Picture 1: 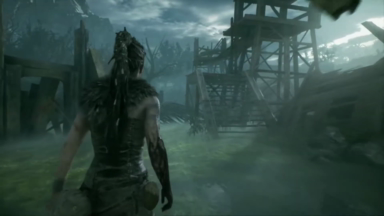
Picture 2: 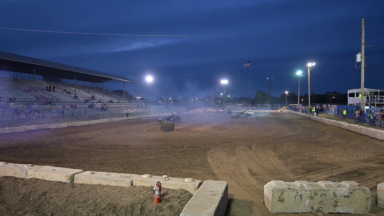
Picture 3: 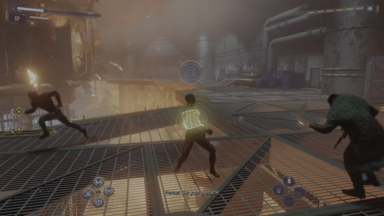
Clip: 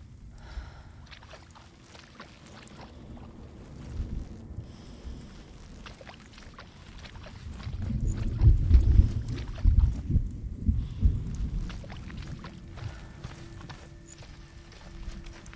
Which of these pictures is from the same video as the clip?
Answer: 1